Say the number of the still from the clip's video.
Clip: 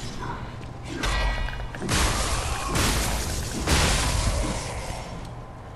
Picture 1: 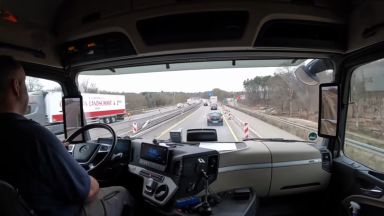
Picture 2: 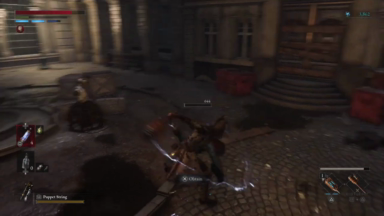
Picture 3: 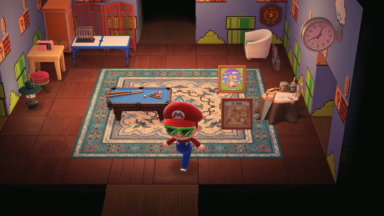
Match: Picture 2